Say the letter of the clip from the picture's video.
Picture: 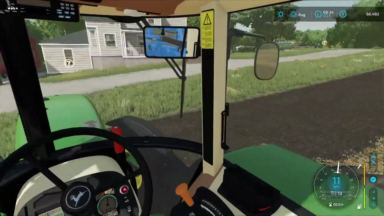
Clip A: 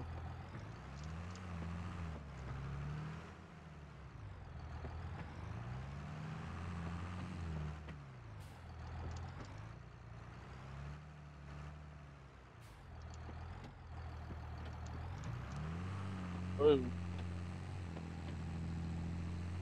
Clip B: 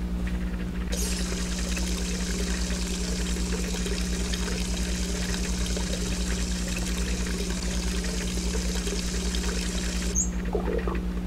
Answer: A